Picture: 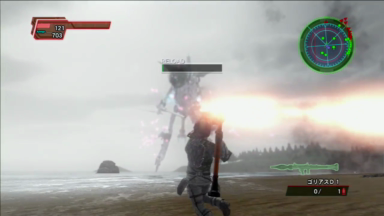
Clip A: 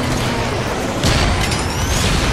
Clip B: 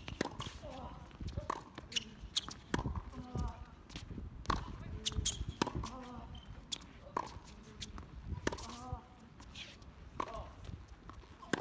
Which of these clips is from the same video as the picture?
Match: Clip A